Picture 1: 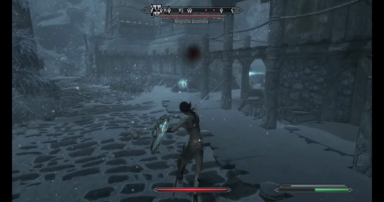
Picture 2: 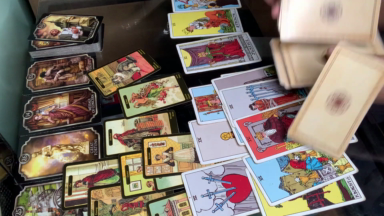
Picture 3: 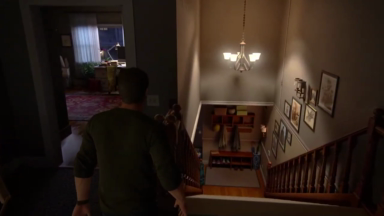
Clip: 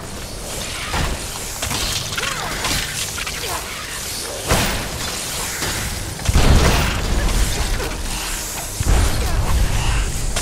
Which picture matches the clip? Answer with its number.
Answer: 1